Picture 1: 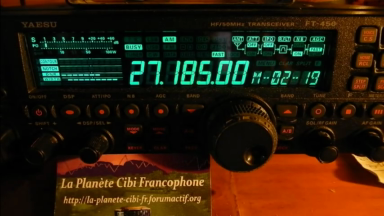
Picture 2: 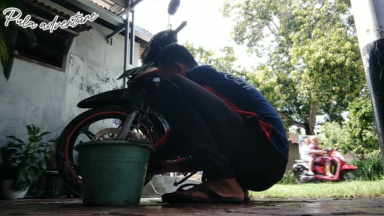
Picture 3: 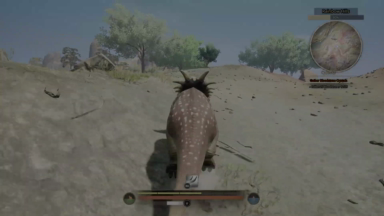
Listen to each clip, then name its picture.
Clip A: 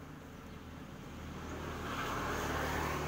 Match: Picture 2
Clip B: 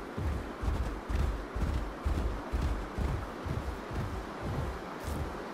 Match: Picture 3